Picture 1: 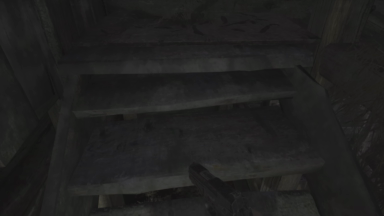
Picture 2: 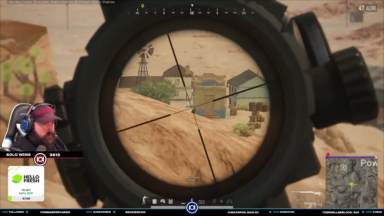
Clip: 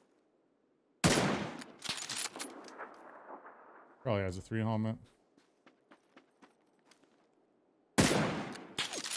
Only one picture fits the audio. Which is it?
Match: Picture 2